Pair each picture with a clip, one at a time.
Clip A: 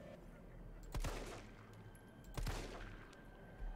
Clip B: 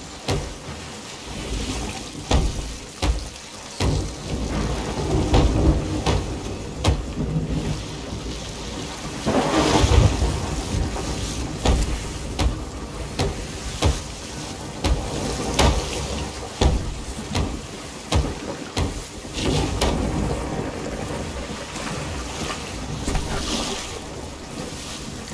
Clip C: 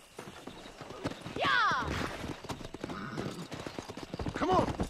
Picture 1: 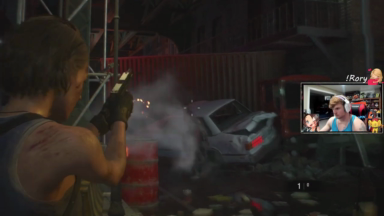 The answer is A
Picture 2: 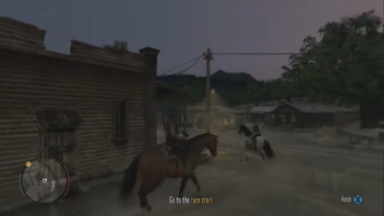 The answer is C